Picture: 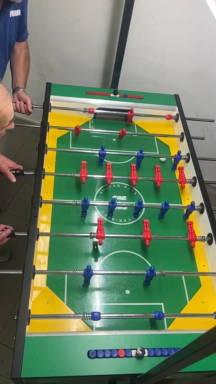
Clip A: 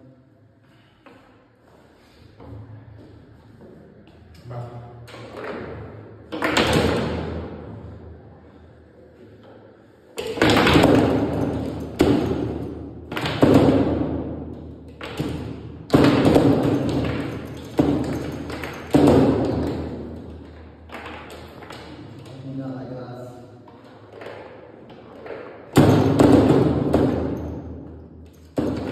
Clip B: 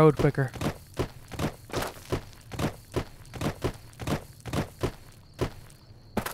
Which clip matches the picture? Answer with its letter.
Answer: A